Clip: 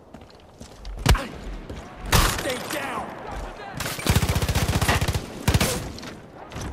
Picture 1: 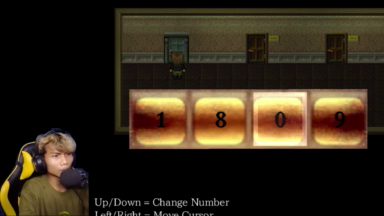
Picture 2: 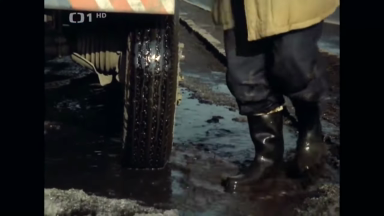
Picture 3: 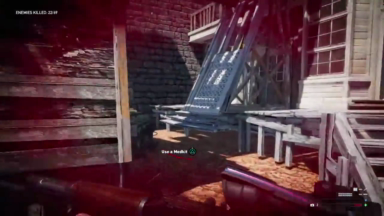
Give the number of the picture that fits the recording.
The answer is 3